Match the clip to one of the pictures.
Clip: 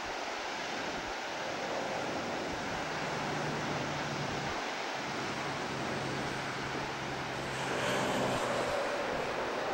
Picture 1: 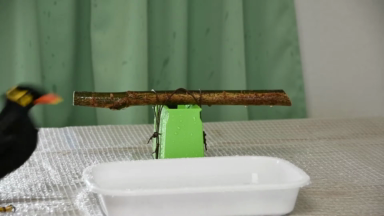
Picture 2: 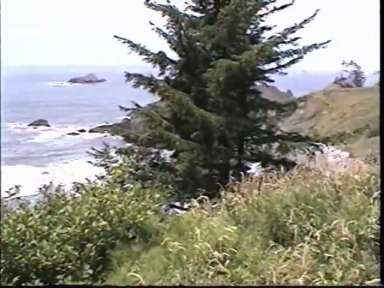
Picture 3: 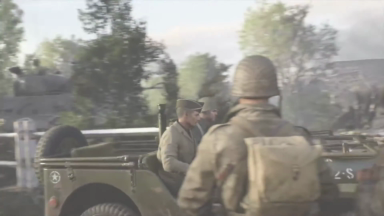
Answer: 2